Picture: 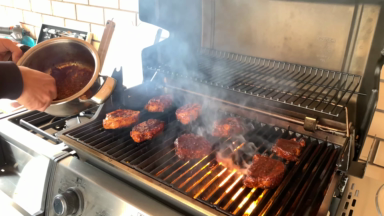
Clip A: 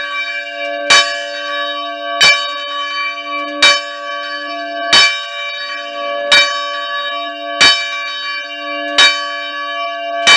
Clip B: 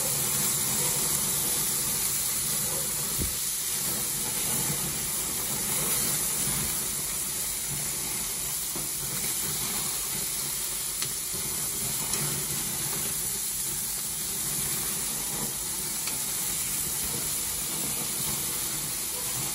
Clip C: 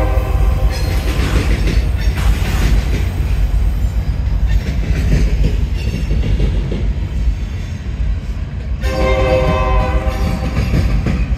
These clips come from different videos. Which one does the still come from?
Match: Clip B